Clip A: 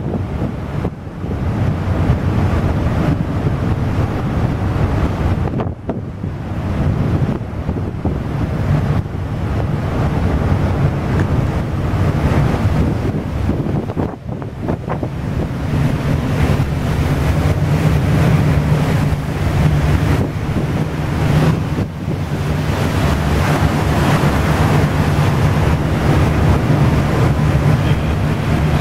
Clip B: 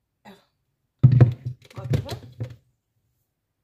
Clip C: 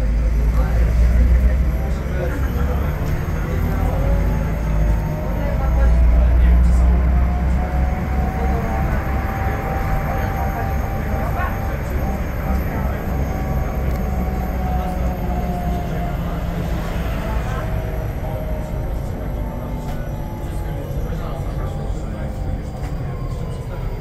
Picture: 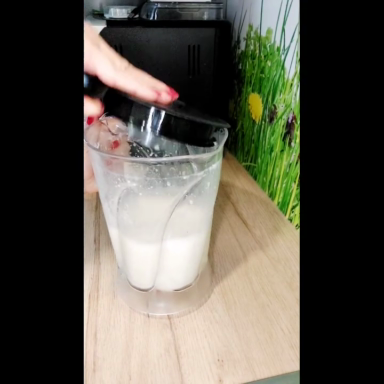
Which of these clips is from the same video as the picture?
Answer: B